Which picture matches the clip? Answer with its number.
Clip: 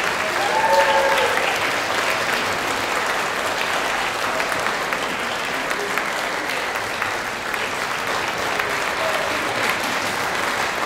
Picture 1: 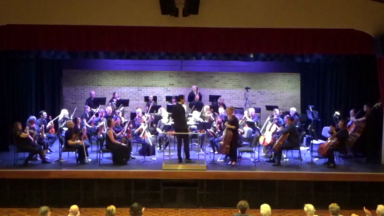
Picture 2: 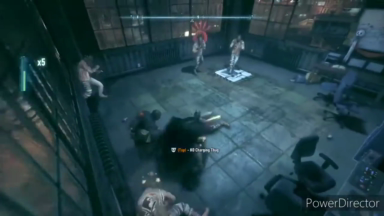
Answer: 1